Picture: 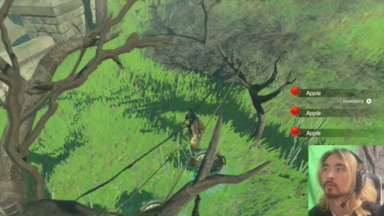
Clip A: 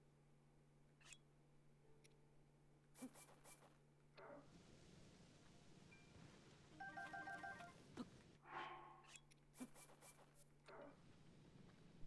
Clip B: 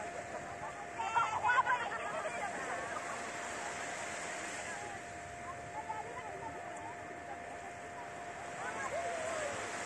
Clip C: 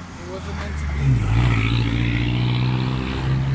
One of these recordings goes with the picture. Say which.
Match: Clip A